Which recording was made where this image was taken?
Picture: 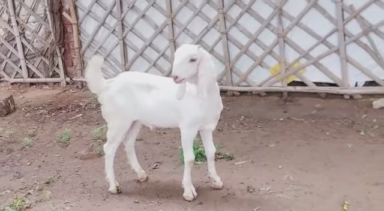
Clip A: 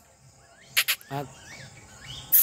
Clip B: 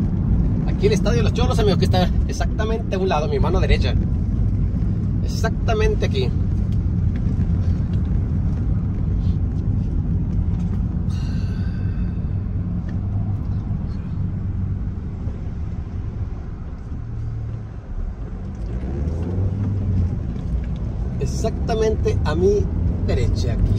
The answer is A